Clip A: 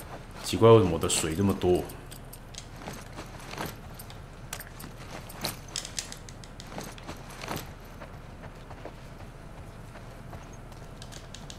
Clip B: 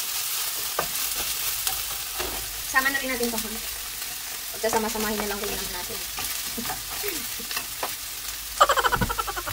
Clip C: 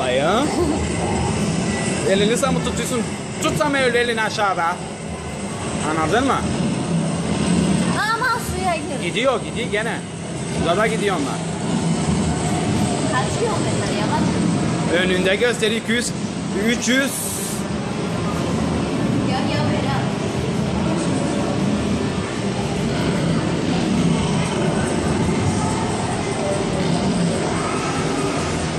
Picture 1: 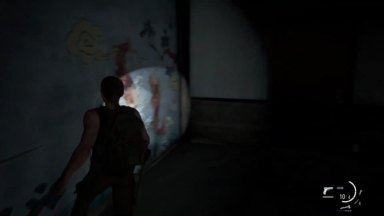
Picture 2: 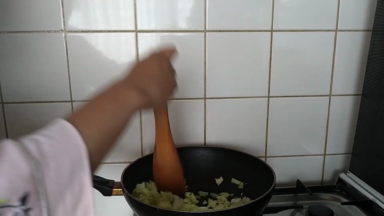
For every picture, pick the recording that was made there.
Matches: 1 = A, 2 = B